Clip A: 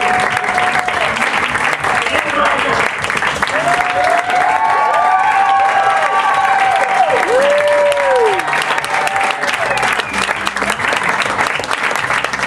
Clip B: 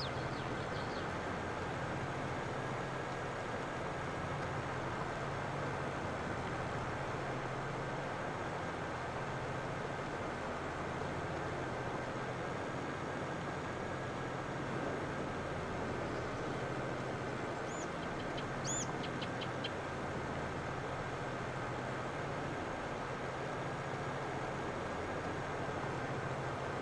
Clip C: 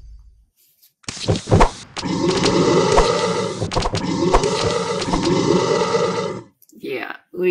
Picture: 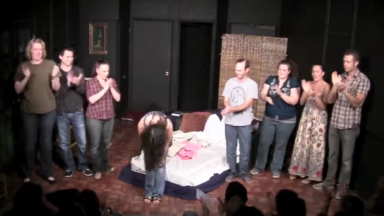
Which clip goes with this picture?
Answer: A